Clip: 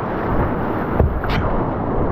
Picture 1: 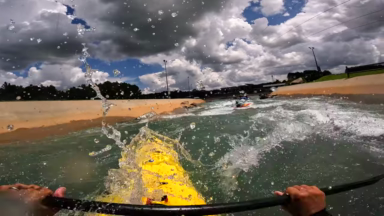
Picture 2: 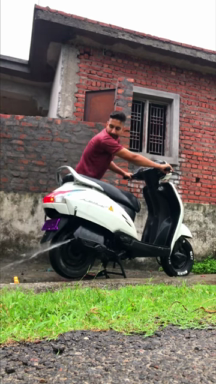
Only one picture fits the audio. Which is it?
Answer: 1